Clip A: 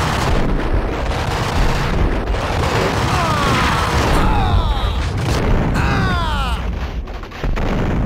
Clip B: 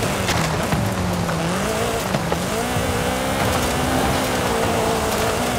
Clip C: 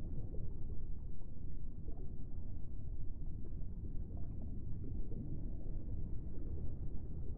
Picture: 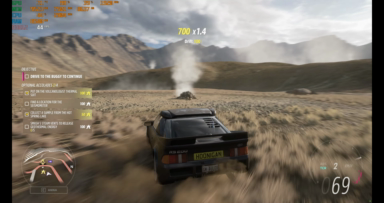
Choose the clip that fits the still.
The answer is B